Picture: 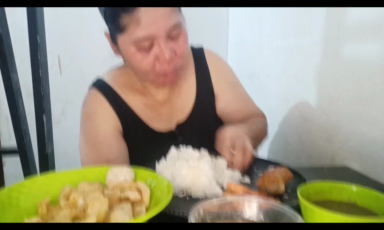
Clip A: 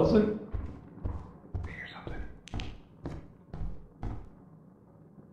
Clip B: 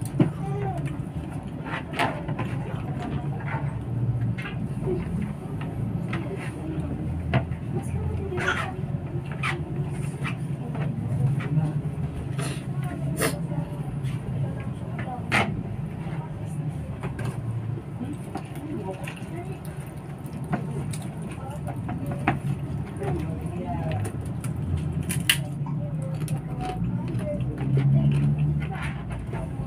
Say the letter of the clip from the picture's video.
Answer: B